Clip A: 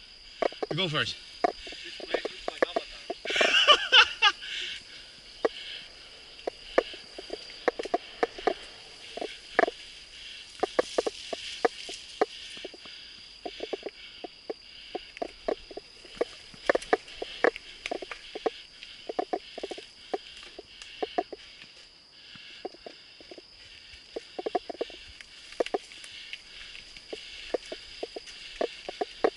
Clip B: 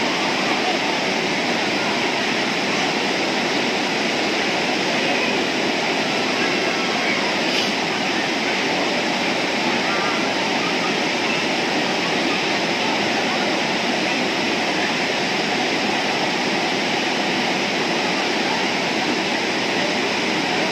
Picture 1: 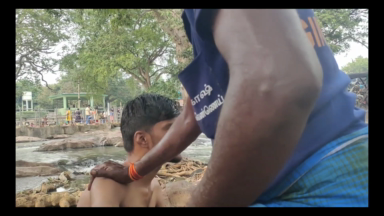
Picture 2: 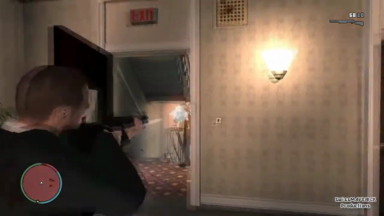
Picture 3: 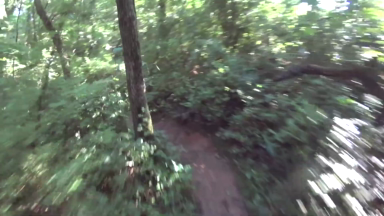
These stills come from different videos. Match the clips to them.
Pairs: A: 3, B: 1